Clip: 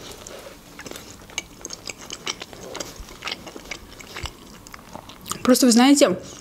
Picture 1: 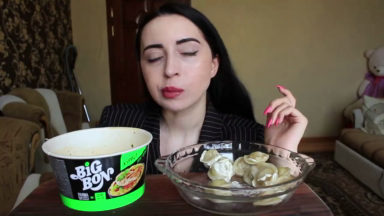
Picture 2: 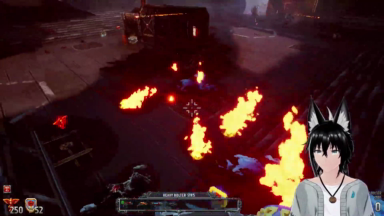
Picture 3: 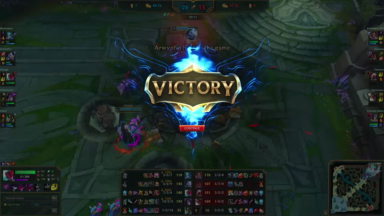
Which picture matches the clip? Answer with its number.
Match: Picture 1